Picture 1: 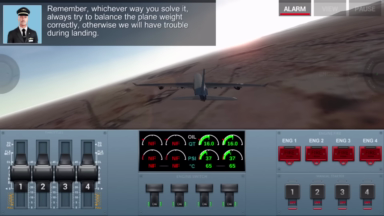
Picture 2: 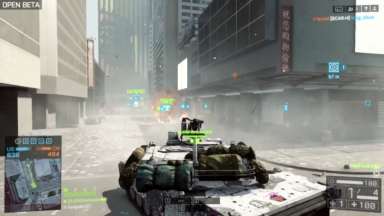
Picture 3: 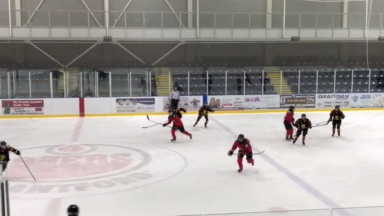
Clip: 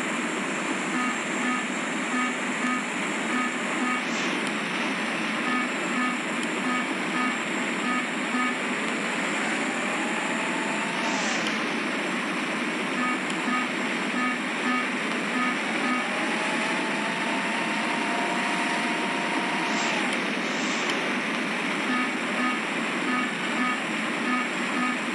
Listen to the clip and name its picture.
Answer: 1